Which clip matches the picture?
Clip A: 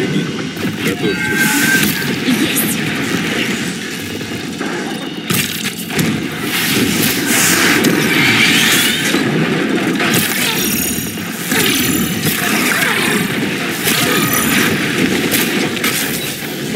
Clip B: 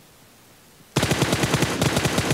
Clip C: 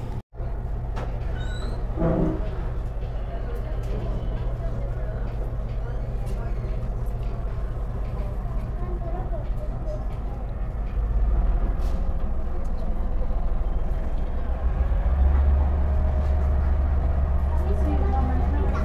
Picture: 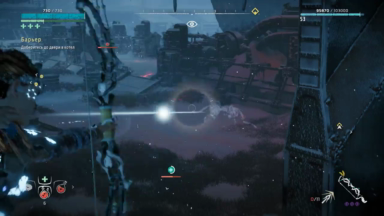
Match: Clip A